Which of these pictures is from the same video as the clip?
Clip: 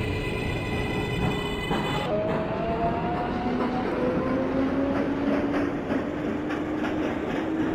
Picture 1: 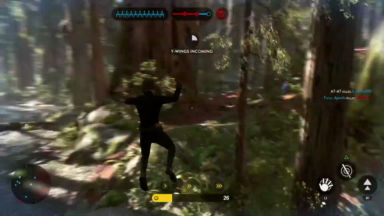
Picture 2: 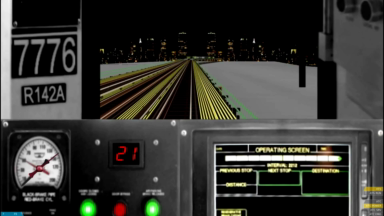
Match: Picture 2